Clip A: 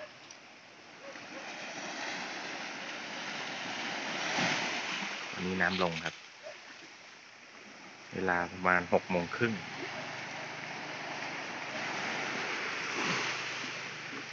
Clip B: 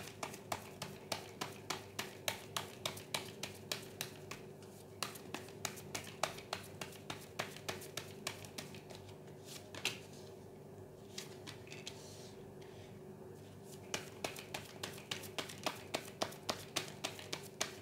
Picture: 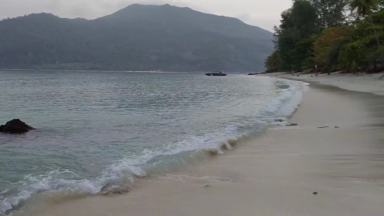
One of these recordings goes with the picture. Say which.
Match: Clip A